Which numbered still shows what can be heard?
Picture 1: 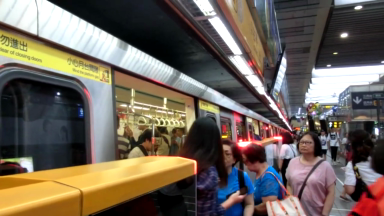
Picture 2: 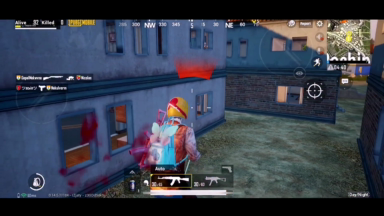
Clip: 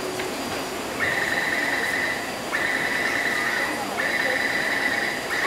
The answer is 1